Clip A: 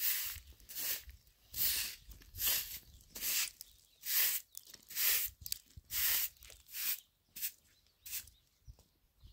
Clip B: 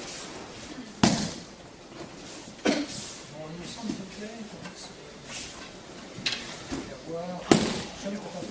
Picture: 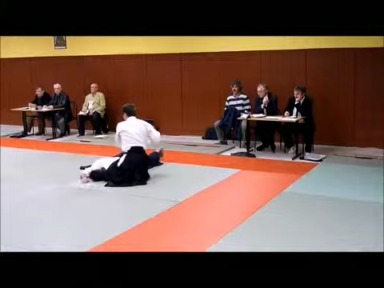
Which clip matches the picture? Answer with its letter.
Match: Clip B